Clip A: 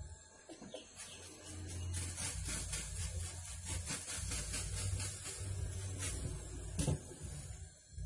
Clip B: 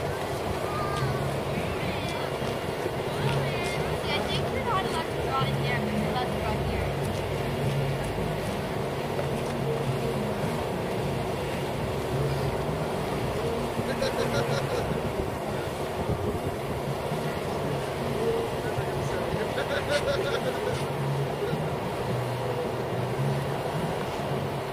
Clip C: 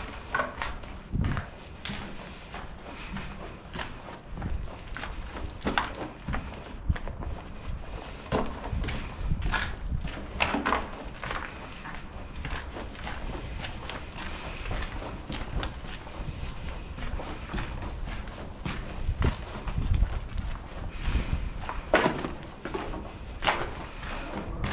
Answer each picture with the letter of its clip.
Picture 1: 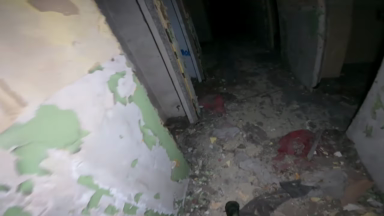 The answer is C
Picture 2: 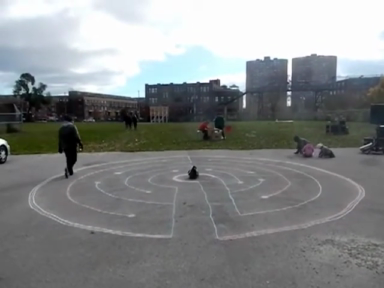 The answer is B